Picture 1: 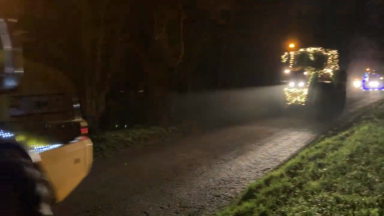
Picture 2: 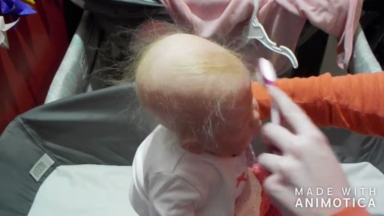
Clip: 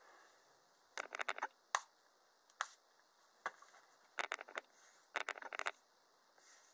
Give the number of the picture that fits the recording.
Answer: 2